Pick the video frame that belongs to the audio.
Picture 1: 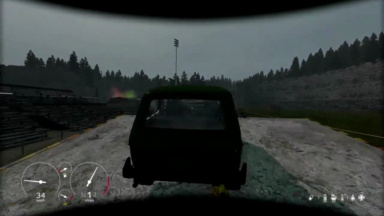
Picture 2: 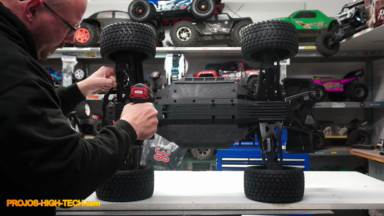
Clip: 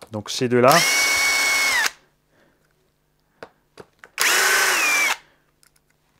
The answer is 2